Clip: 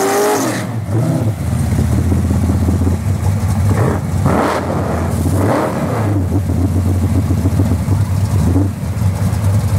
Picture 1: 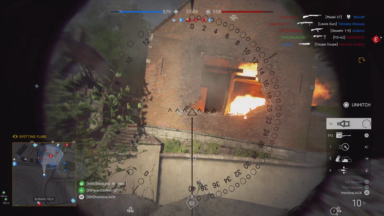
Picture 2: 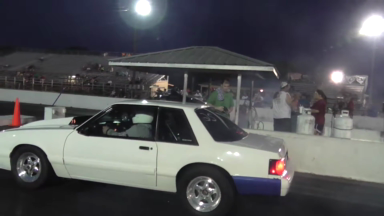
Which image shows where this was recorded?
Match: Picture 2